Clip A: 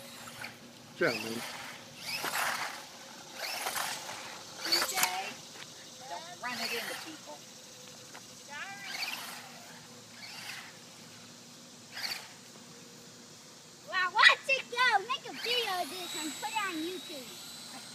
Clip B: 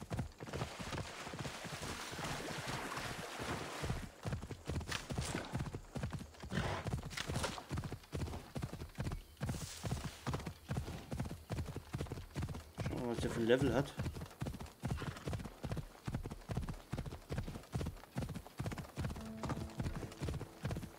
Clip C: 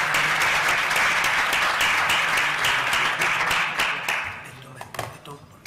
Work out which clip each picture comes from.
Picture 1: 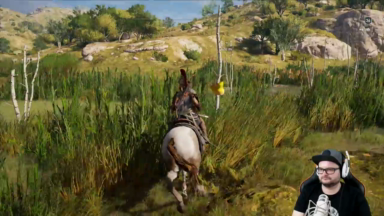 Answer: B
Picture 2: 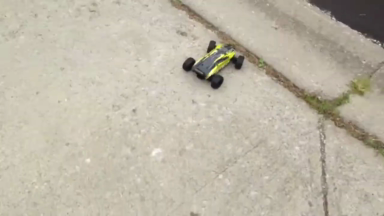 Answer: A